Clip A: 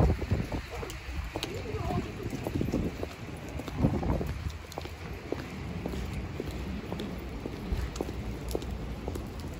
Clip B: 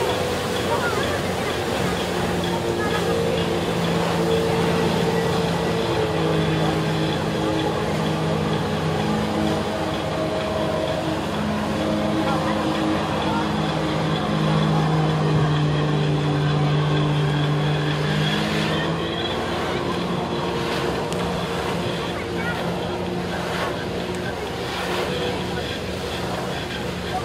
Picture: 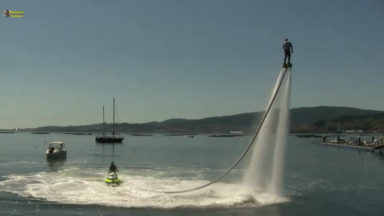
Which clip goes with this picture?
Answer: B